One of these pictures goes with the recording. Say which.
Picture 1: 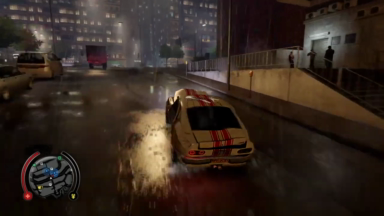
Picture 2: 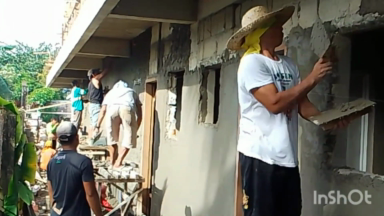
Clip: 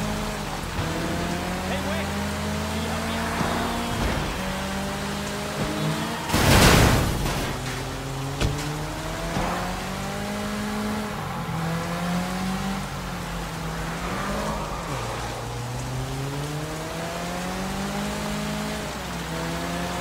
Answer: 1